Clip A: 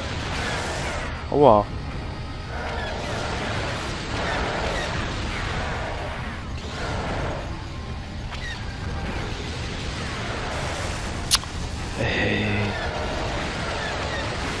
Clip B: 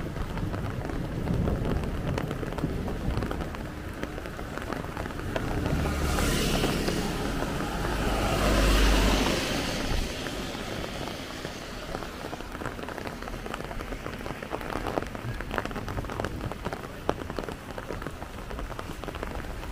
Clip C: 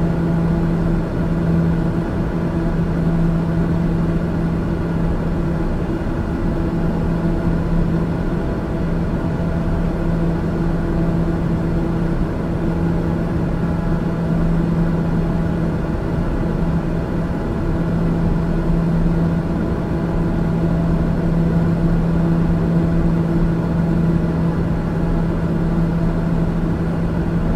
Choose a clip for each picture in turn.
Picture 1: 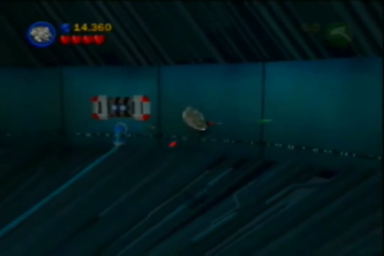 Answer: A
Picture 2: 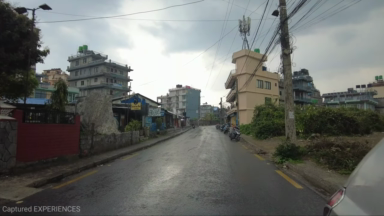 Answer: B